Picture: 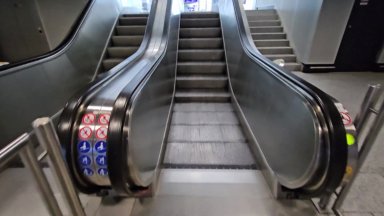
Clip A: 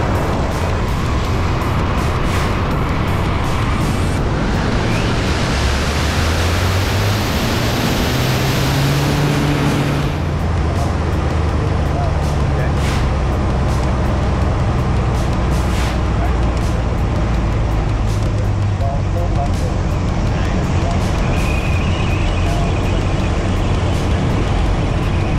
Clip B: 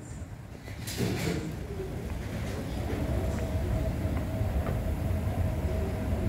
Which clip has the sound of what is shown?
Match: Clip B